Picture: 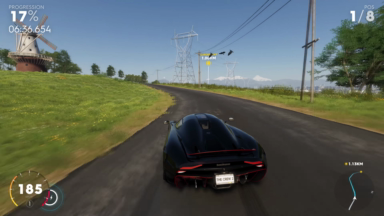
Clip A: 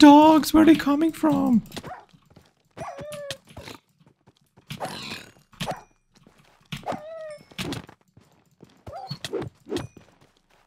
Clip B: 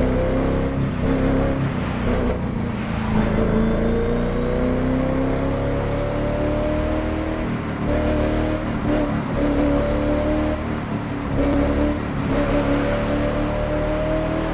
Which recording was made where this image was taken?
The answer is B